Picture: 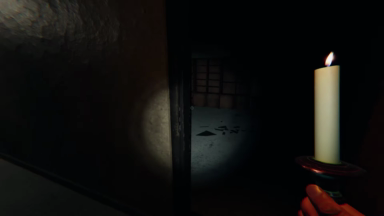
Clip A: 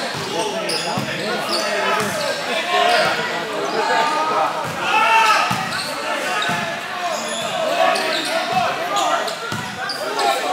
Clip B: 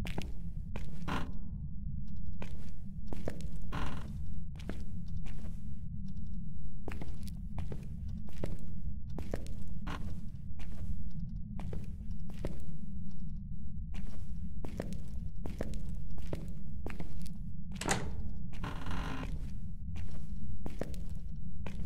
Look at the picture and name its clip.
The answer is B